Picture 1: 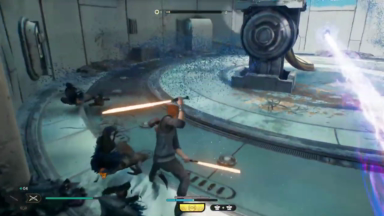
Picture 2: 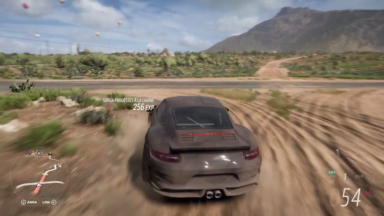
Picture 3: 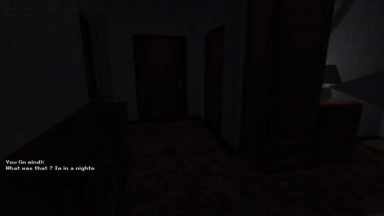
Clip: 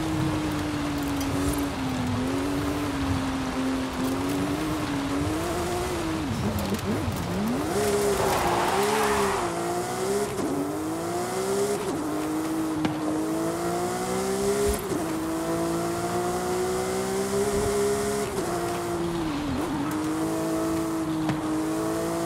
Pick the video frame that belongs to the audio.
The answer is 2